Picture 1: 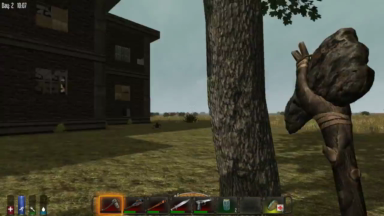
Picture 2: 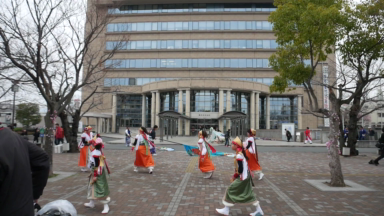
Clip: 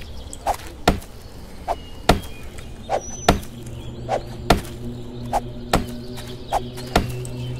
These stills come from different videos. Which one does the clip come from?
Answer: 1